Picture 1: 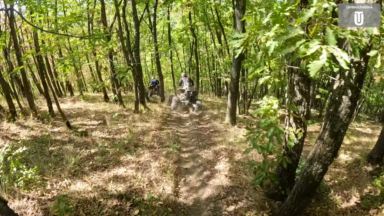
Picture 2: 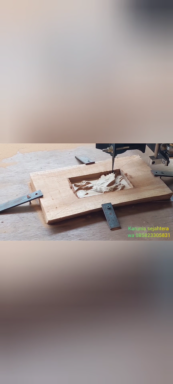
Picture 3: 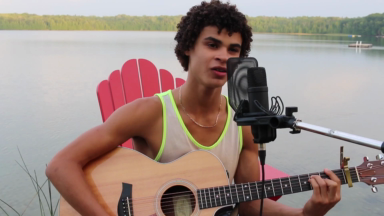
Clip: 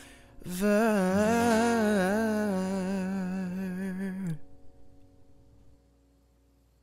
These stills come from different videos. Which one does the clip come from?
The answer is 3